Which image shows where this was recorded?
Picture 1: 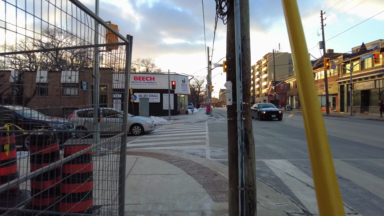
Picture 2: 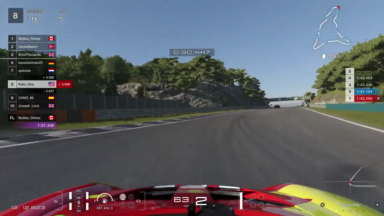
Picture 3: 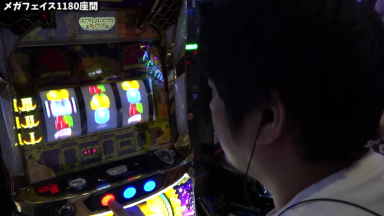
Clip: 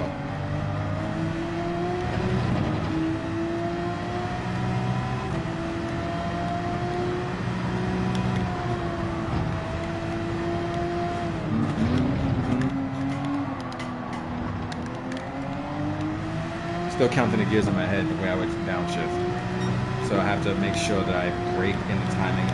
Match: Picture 2